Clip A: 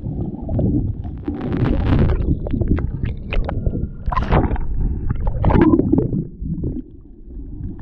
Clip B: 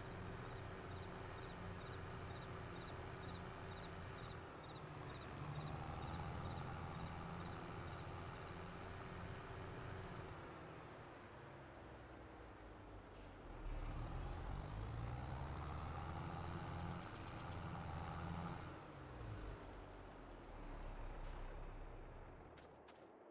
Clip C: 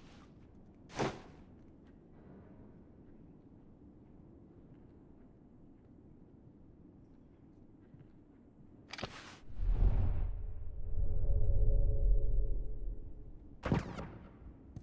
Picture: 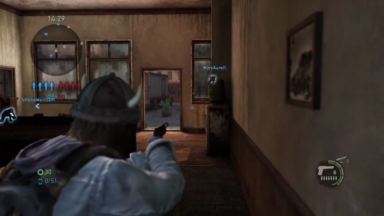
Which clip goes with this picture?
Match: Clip C